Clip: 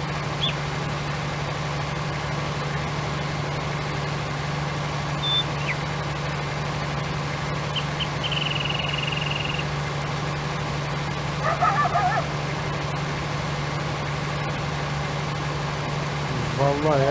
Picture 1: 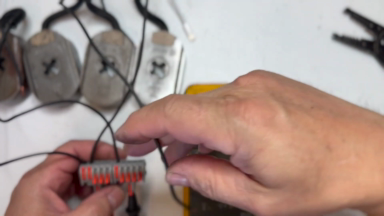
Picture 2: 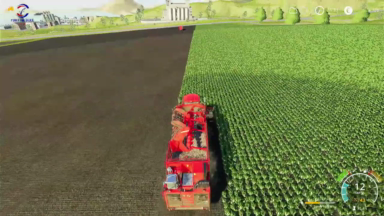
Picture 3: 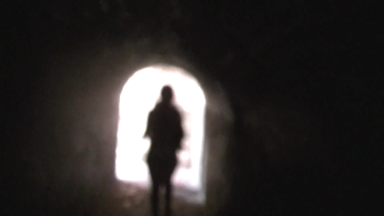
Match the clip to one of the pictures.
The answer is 2